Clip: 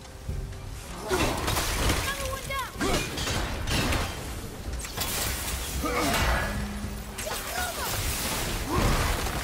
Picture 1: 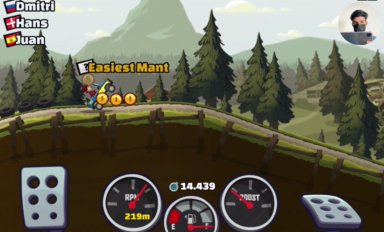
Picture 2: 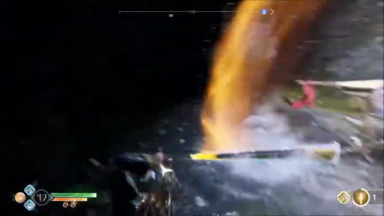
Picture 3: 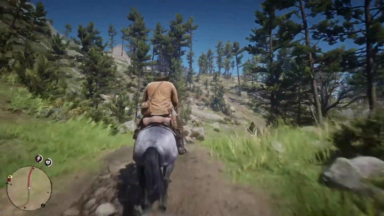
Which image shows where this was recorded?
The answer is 2